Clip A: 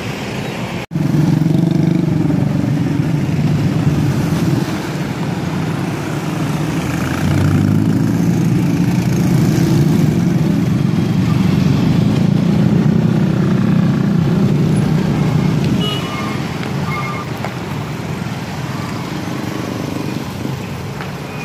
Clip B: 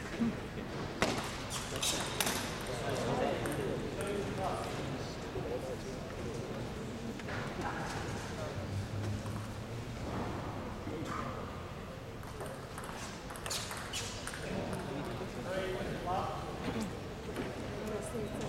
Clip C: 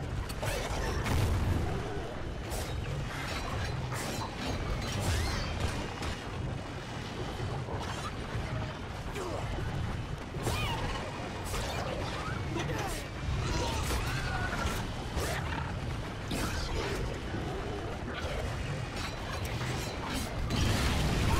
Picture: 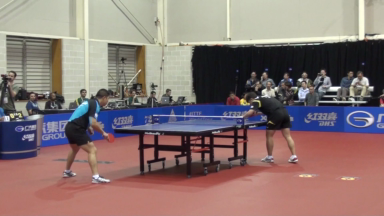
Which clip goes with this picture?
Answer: B